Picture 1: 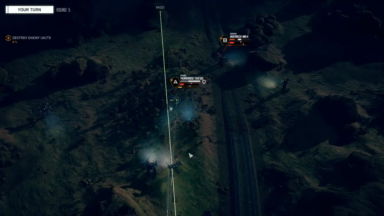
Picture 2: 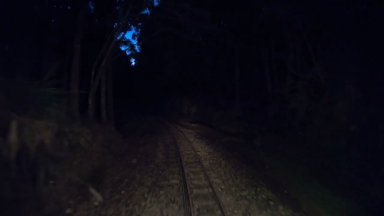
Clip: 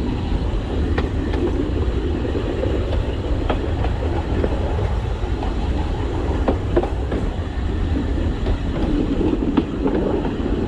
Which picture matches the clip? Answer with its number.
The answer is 2